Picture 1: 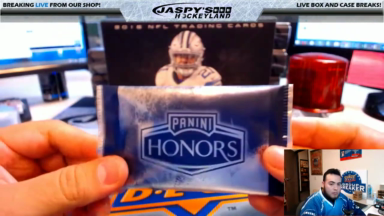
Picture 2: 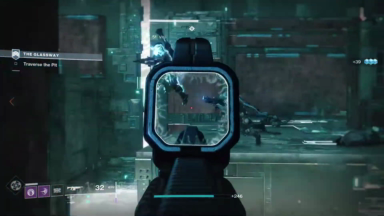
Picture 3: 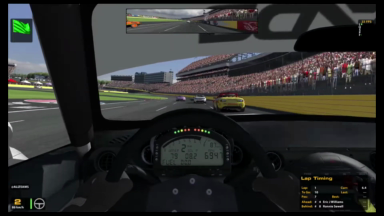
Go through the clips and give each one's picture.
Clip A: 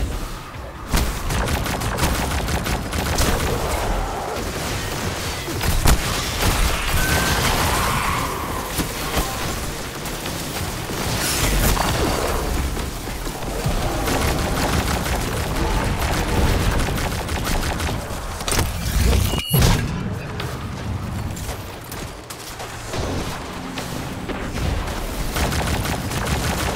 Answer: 2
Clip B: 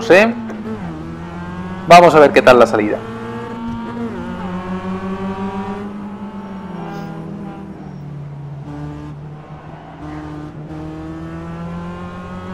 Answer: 3